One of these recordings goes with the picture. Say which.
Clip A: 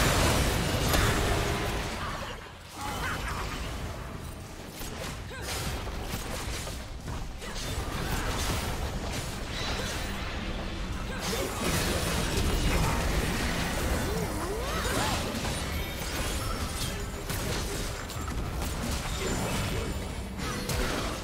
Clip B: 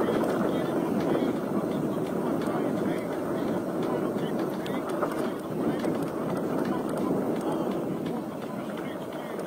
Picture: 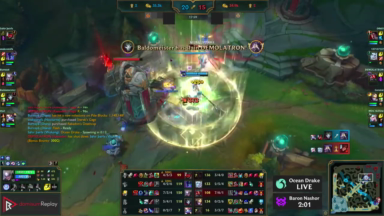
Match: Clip A